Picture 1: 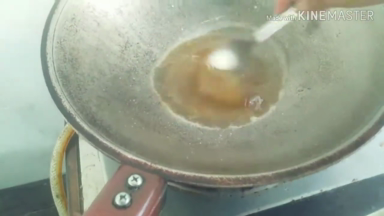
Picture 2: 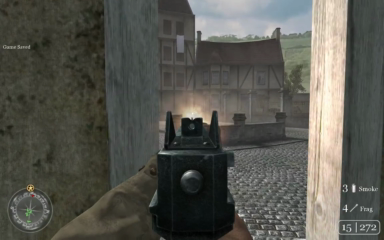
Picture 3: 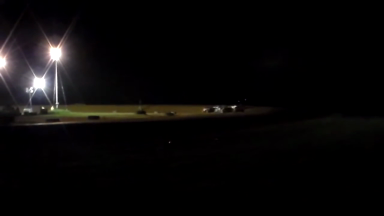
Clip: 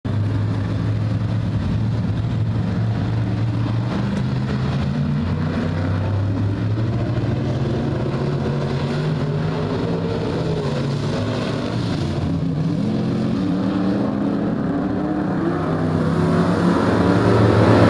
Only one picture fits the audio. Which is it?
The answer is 3